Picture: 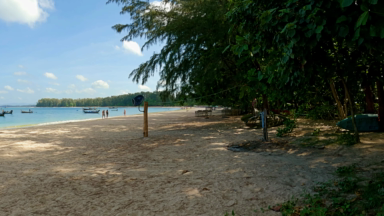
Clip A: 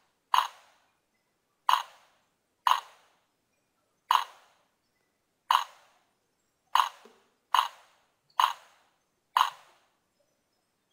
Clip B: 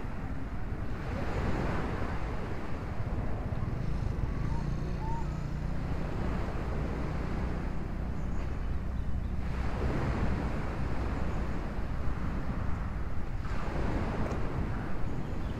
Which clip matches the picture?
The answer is B